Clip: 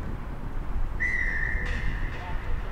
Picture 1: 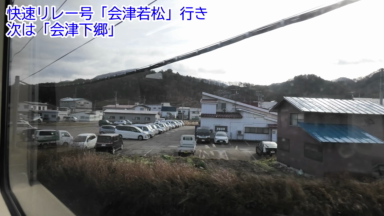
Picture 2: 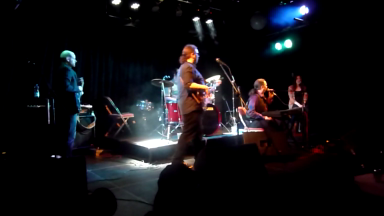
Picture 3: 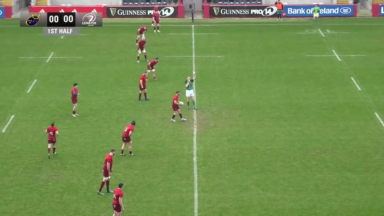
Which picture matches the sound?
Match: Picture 3